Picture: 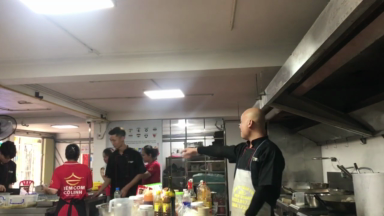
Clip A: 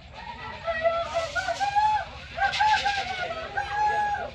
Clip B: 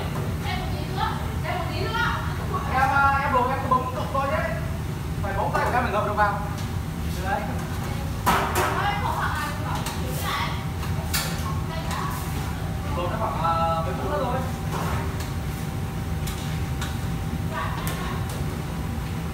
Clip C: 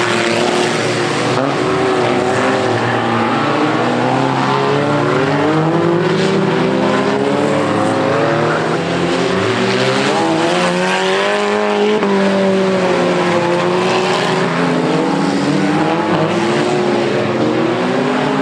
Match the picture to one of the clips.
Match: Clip B